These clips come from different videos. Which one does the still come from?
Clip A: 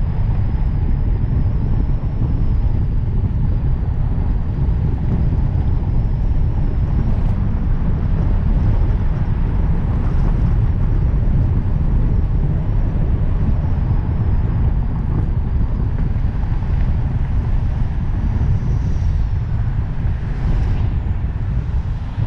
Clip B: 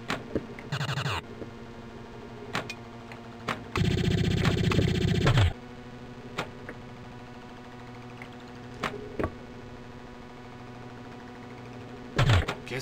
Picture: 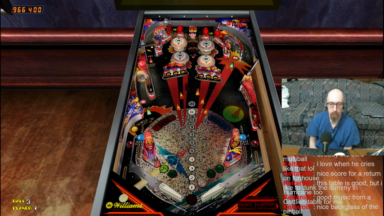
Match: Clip B